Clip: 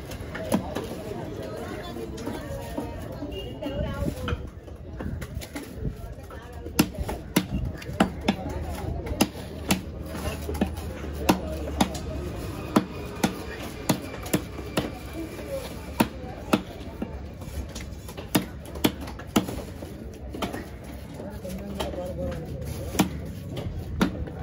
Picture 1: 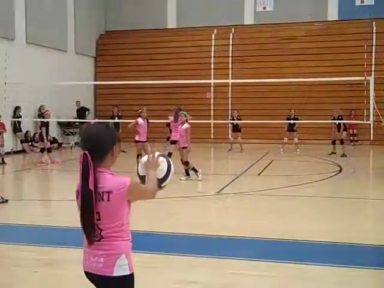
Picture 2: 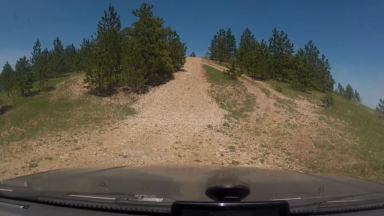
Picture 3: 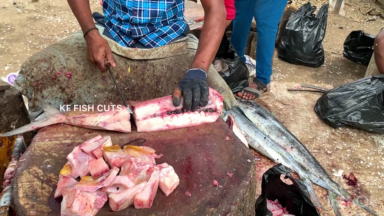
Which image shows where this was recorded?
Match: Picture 3